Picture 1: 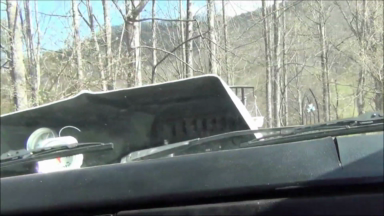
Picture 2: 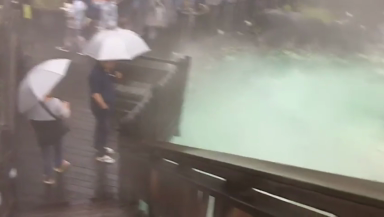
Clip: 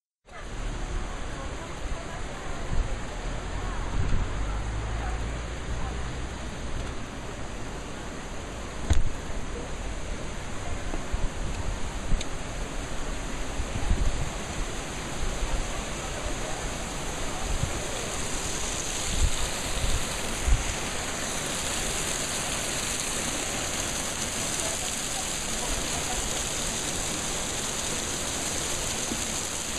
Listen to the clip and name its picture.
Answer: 2